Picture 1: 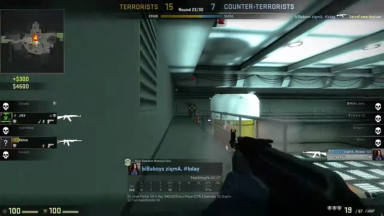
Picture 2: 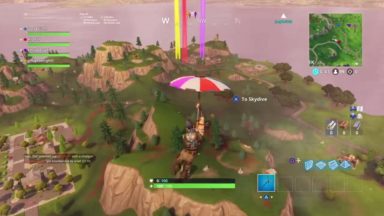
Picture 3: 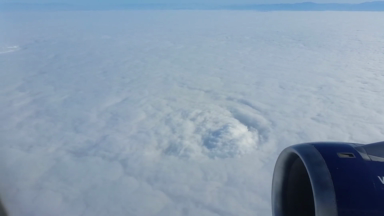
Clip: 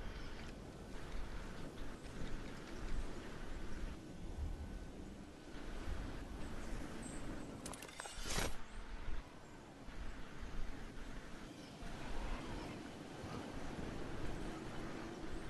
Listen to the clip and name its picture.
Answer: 2